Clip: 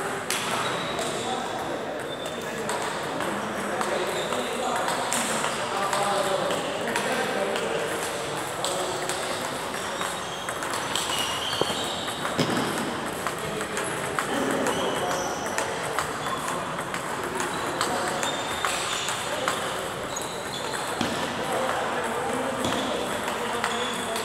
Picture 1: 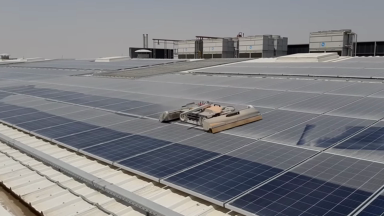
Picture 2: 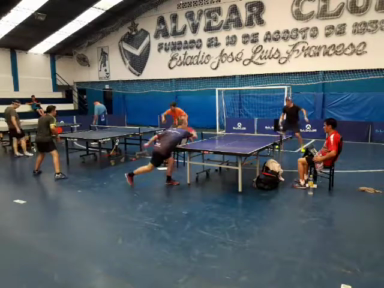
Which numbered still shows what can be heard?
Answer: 2